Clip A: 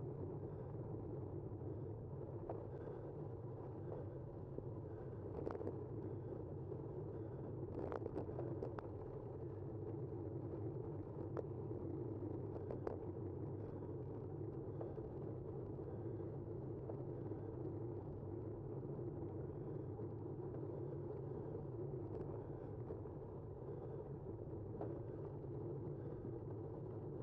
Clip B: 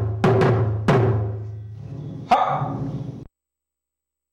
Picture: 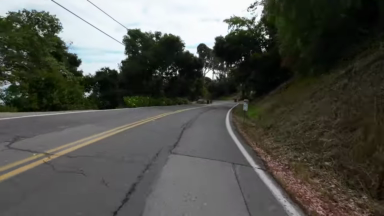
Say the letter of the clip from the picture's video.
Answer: A